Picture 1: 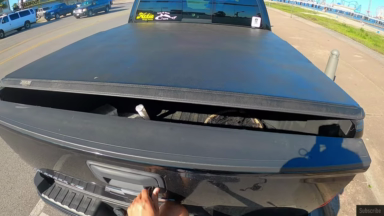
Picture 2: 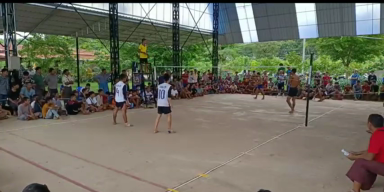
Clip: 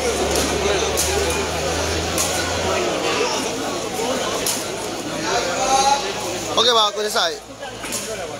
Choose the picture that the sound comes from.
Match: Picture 2